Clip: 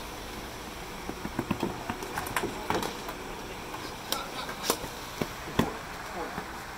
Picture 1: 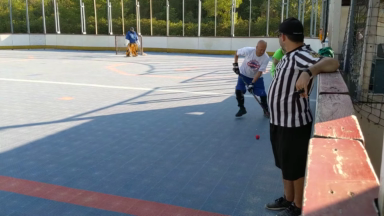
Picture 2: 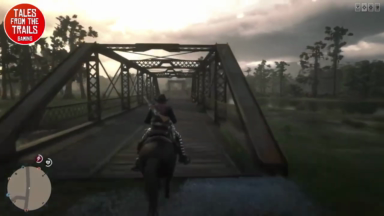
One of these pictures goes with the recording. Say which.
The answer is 1